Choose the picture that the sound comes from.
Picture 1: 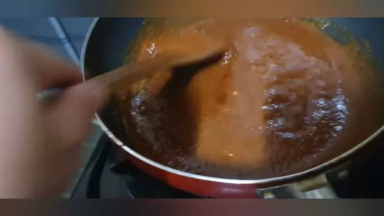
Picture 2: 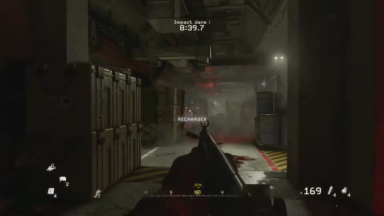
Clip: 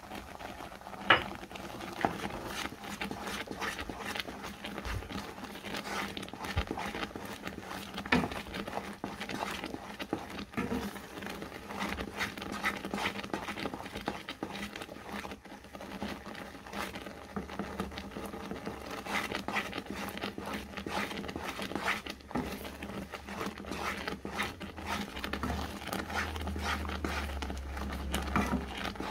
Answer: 1